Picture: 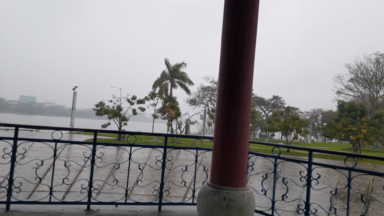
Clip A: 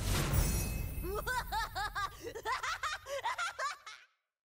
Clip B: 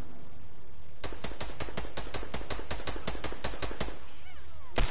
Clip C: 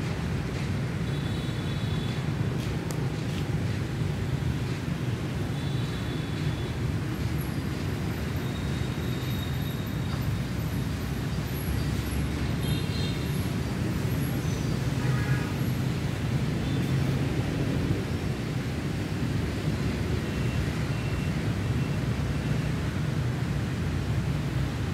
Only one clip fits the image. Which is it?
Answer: C